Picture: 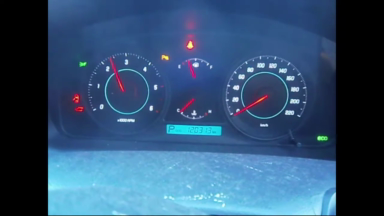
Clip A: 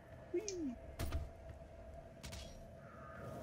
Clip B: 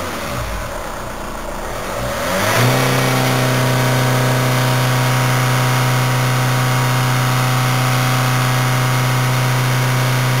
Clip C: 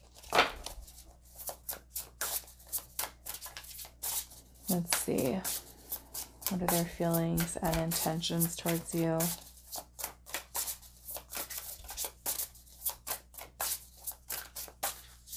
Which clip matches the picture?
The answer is B